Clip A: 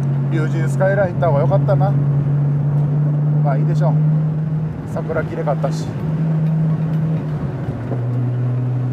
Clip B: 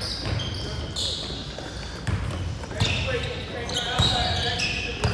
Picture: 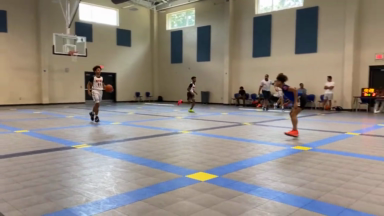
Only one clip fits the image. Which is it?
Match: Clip B